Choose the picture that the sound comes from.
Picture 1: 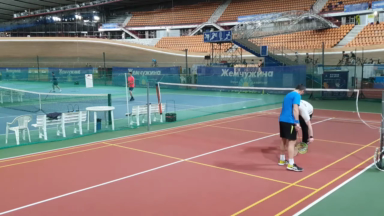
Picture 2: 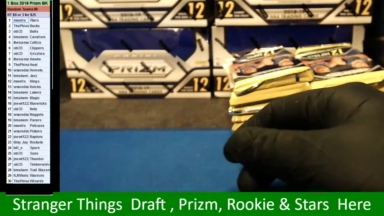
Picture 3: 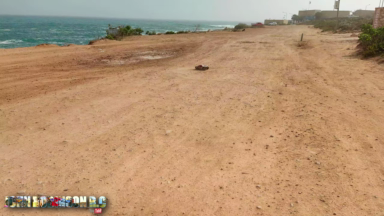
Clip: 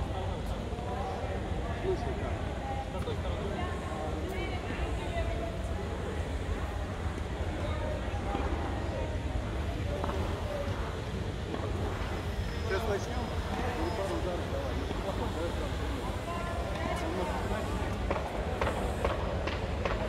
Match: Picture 1